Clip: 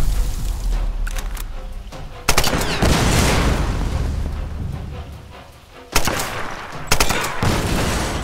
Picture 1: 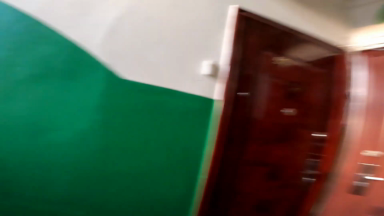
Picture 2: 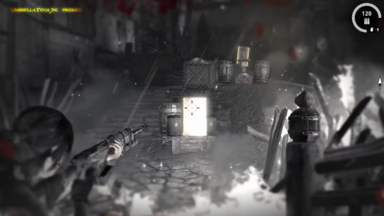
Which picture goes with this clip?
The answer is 2